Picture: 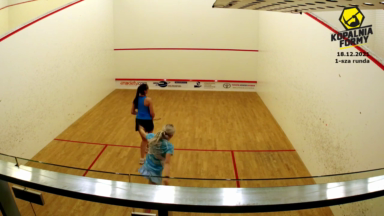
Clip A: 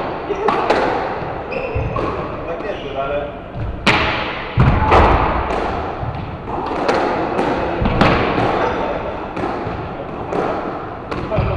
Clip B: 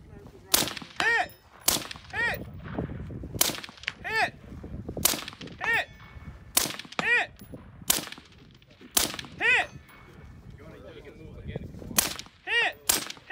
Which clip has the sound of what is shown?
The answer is A